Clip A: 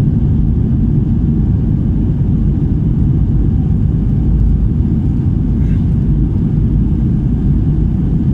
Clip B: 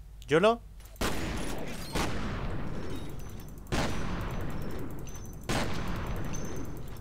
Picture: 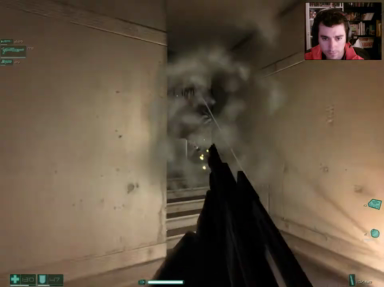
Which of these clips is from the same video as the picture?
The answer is B